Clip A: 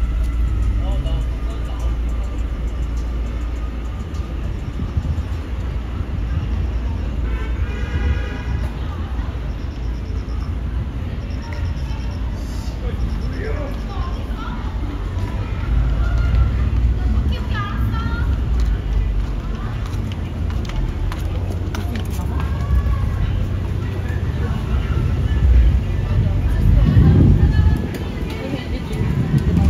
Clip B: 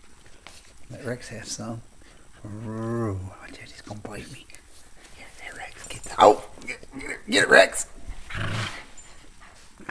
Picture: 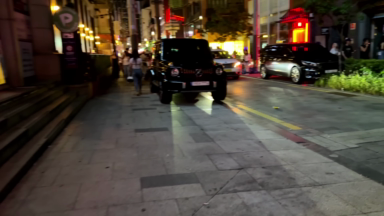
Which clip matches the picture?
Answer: A